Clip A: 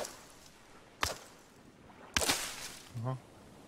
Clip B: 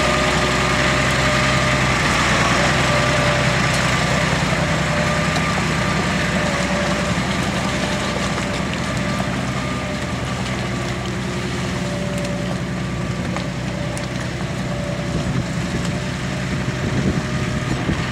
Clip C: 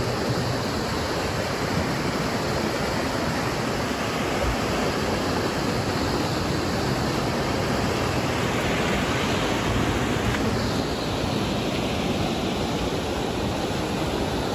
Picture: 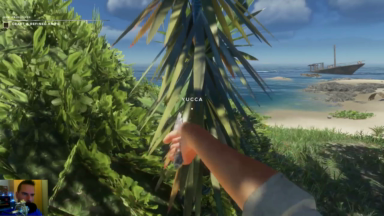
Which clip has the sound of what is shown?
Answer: A